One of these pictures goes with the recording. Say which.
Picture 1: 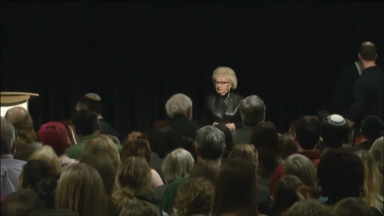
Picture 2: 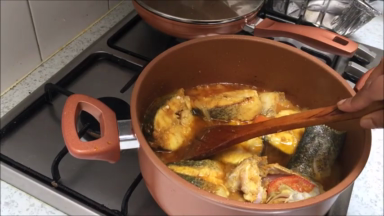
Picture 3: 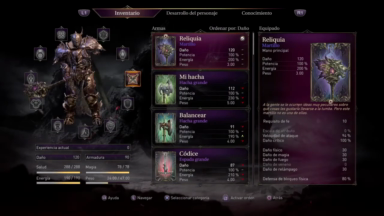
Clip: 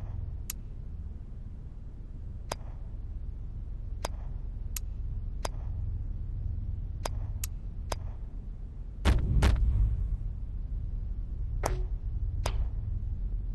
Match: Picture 3